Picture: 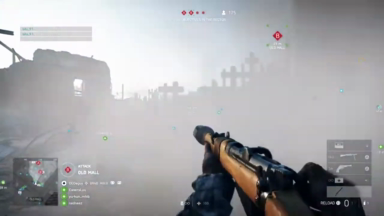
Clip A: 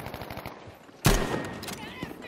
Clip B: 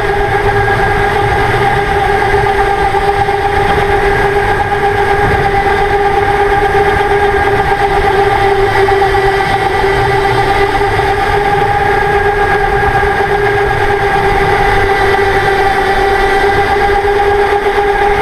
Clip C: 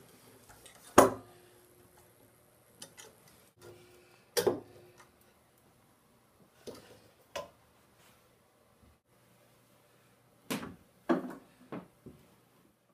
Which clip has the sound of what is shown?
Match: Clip A